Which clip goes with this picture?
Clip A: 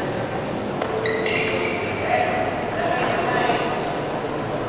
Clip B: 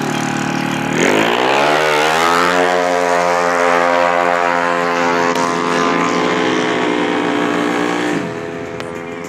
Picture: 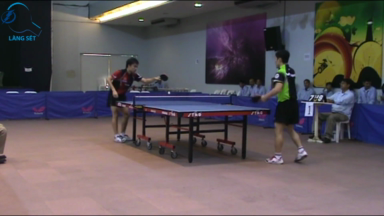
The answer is A